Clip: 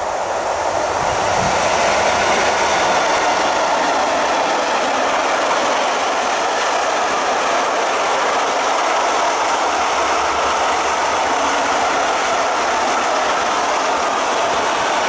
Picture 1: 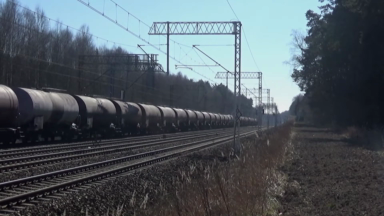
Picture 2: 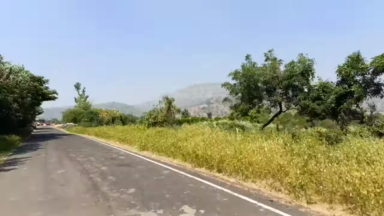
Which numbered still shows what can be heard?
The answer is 1